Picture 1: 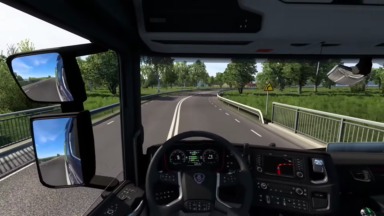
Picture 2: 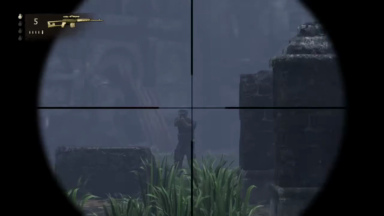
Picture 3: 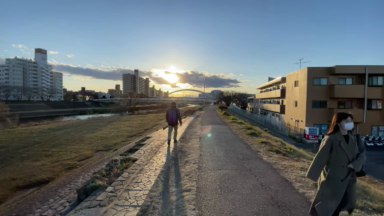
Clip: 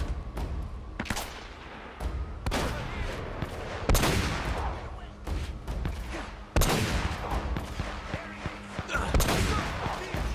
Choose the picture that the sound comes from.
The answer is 2